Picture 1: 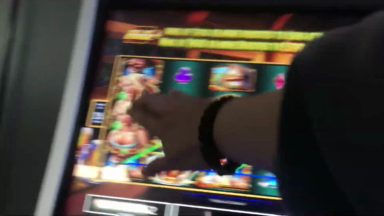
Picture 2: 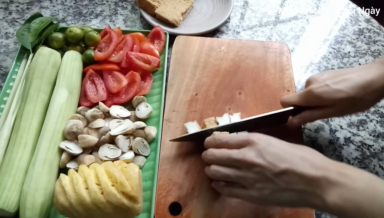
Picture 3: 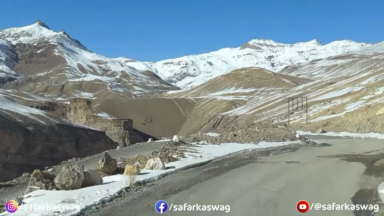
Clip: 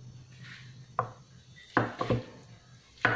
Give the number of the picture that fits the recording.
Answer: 2